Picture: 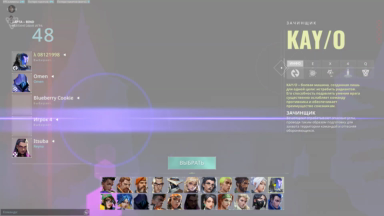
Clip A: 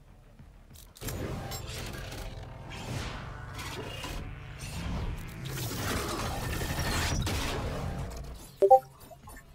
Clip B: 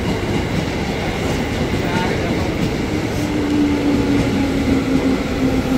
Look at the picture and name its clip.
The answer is A